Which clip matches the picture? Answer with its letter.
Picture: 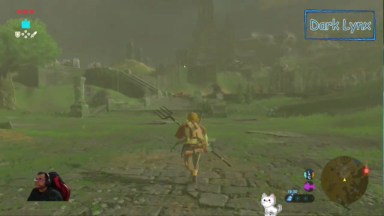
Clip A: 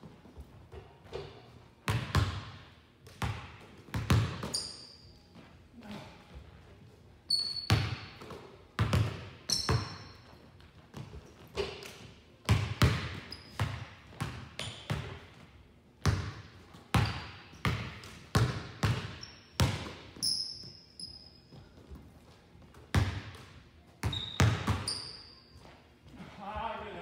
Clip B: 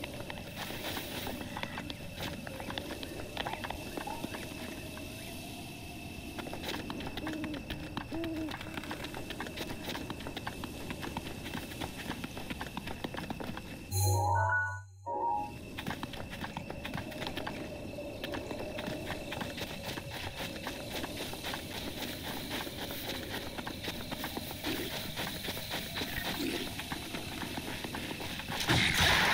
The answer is B